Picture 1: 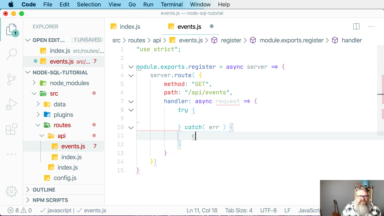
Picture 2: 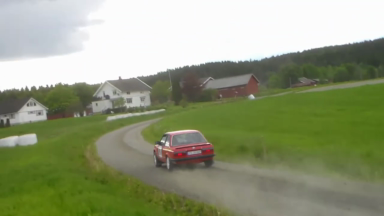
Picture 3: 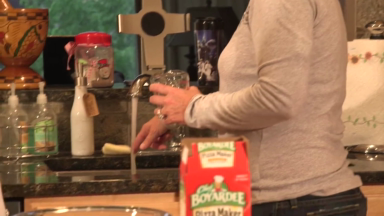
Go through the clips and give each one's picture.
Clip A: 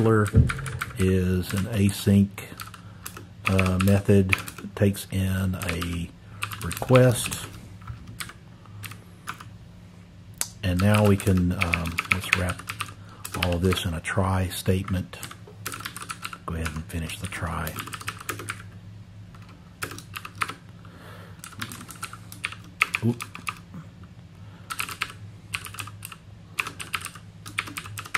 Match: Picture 1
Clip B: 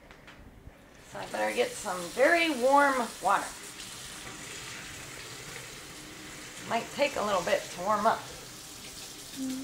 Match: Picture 3